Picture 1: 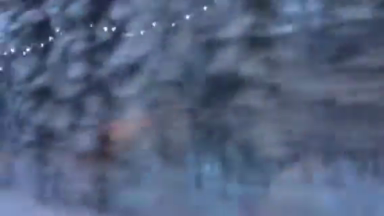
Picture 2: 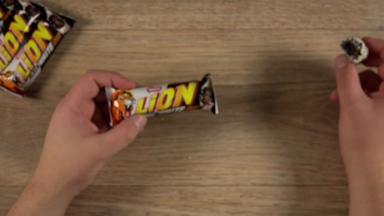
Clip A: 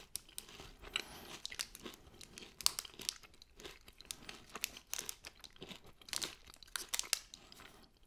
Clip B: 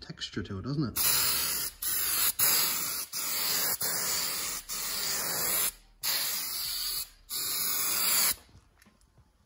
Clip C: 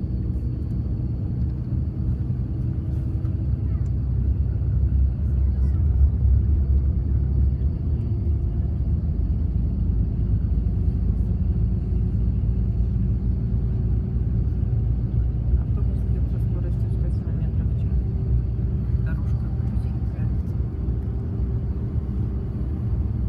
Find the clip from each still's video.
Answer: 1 C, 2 A